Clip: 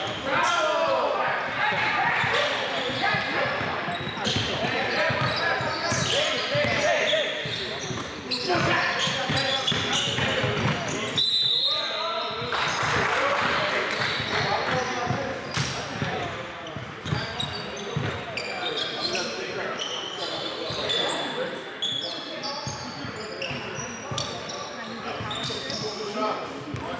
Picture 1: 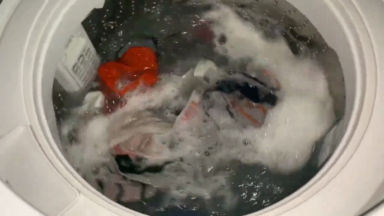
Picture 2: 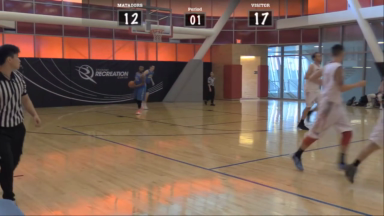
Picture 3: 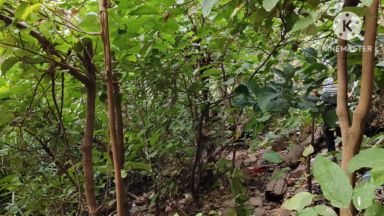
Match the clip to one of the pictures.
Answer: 2